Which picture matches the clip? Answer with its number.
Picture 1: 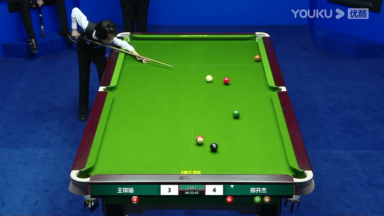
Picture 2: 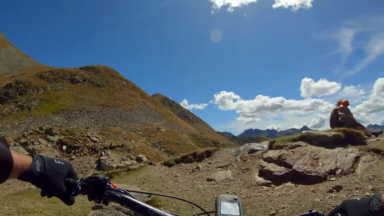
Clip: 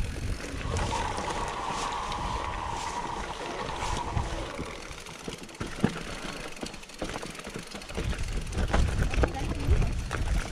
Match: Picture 2